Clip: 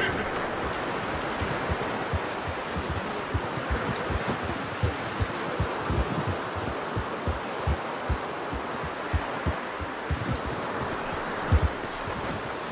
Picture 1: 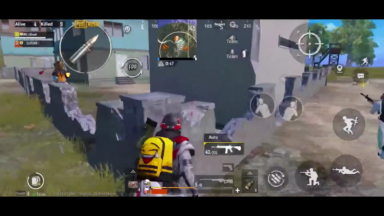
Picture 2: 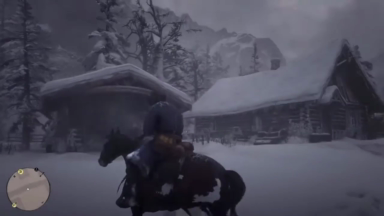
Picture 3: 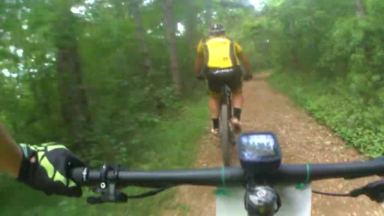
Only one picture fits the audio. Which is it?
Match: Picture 2